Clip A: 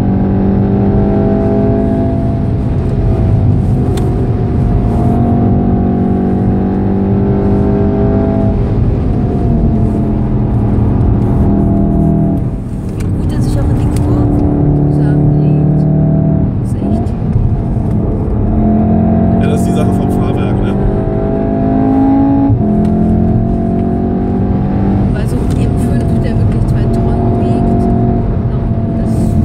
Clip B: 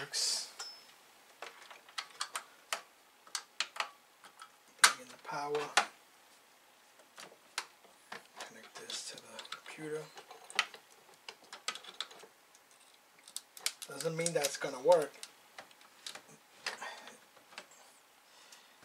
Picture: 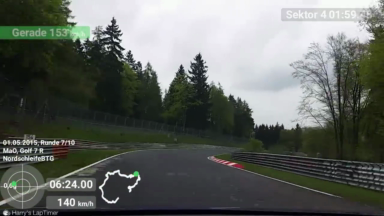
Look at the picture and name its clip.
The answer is A